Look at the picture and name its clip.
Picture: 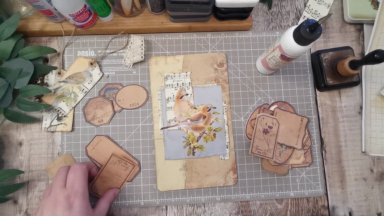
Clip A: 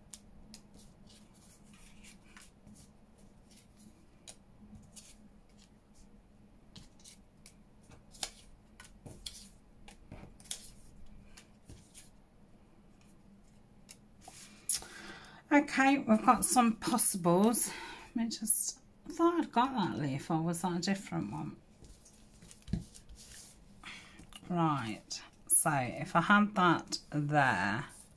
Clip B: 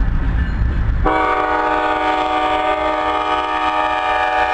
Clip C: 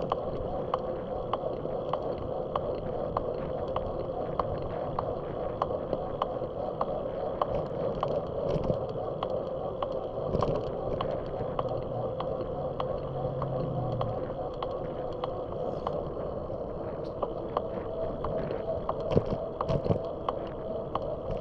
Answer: A